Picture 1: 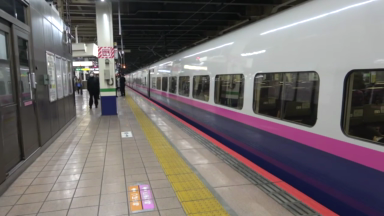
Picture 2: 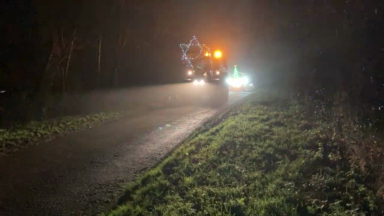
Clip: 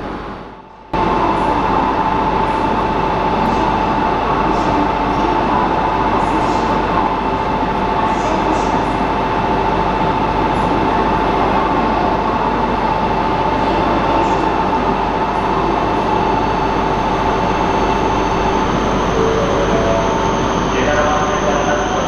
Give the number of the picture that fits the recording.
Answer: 1